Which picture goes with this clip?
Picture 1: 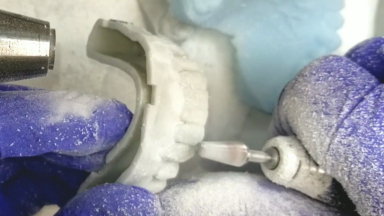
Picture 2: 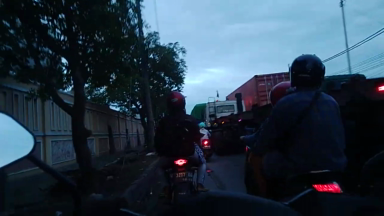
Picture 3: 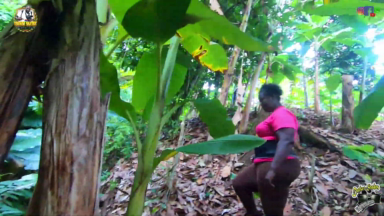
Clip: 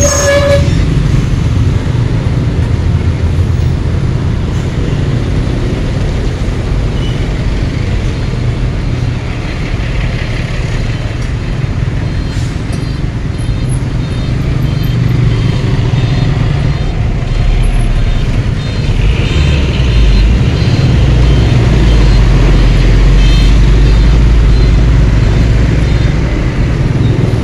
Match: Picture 2